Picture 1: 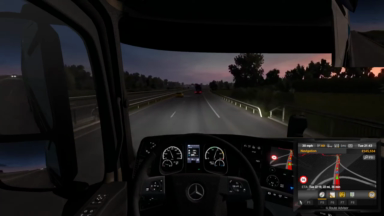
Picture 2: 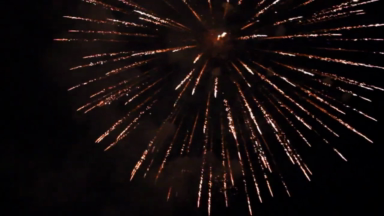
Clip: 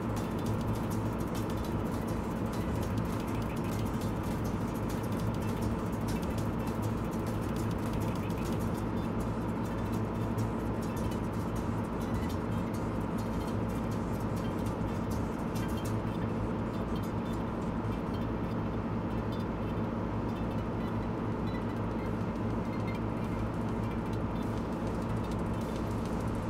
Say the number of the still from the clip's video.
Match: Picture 1